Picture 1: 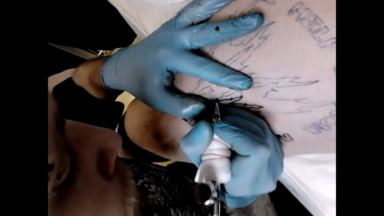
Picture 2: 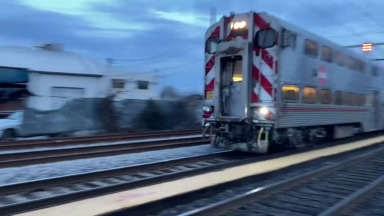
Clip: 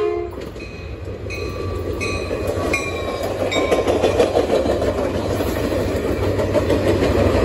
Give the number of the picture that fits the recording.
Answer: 2